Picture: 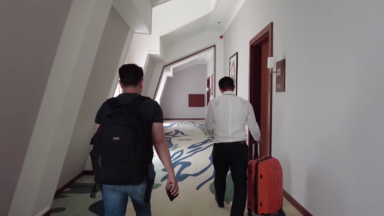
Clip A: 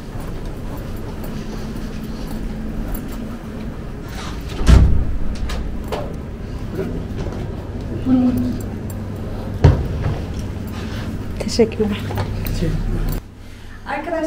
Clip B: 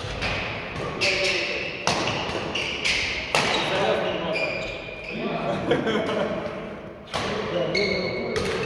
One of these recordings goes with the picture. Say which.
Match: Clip A